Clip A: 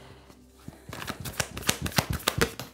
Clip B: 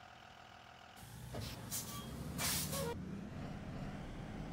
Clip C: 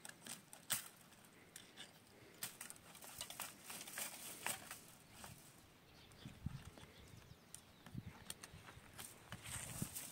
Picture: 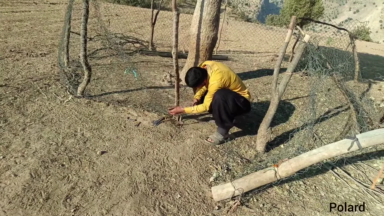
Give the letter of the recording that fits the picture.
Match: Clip C